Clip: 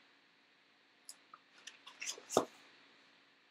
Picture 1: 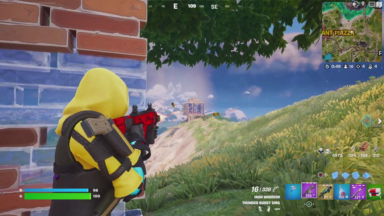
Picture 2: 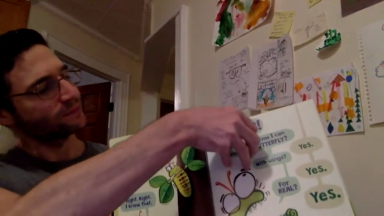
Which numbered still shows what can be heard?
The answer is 2